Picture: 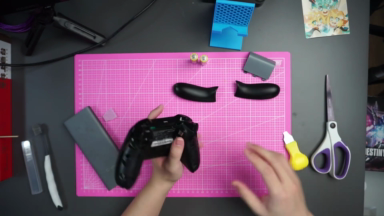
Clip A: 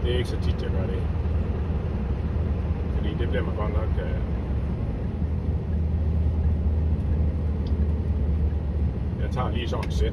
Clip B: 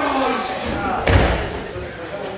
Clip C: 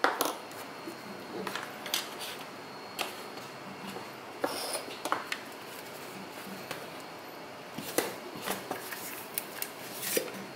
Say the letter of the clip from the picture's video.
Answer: C